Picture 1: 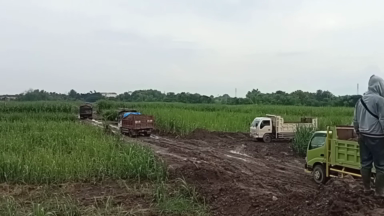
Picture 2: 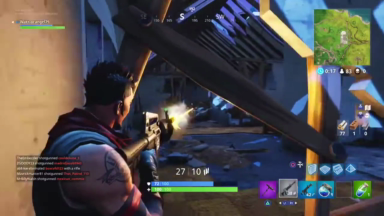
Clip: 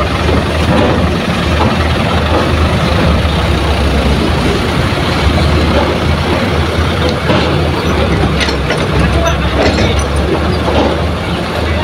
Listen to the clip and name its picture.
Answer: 1